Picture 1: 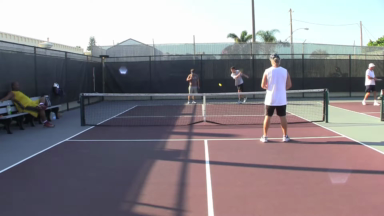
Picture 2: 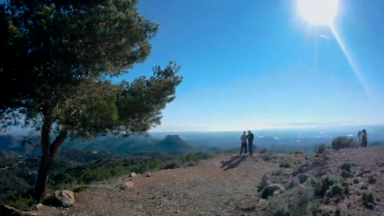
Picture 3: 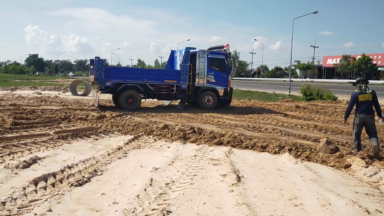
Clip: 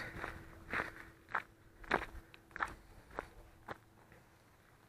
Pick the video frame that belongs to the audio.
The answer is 2